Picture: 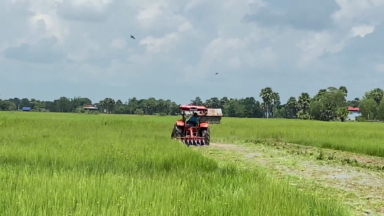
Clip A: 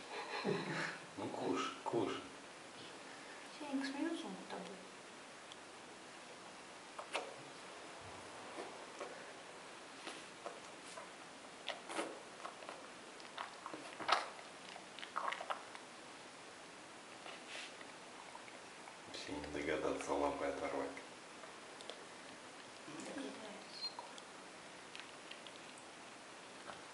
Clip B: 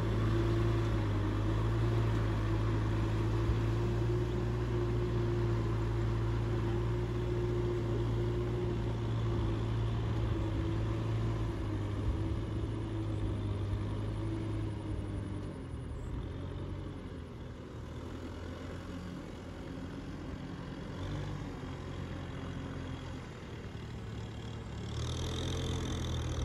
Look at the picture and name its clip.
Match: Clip B